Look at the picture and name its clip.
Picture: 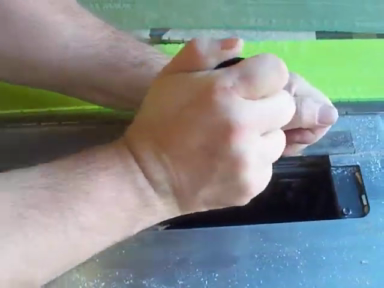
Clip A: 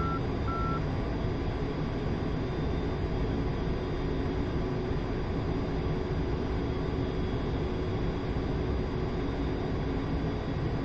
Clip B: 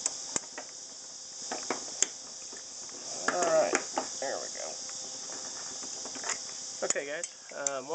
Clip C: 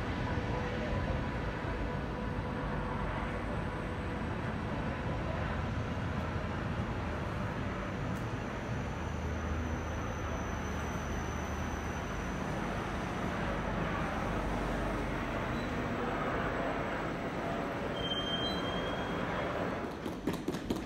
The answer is B